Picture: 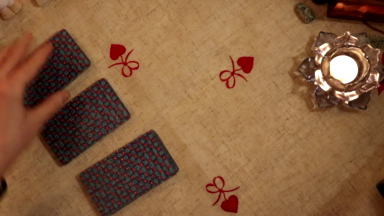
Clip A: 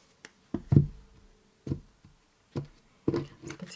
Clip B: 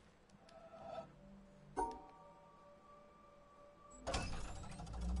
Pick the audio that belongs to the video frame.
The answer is A